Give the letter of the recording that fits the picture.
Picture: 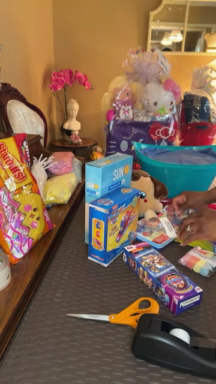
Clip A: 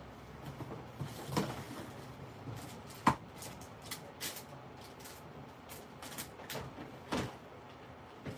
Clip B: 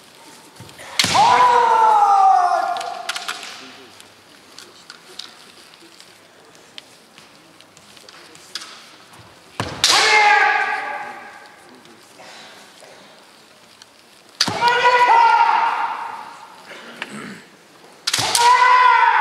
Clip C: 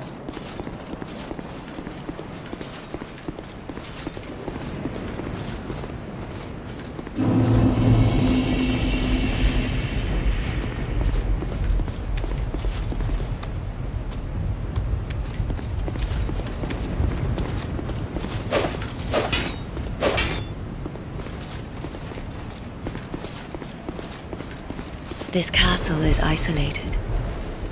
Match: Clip A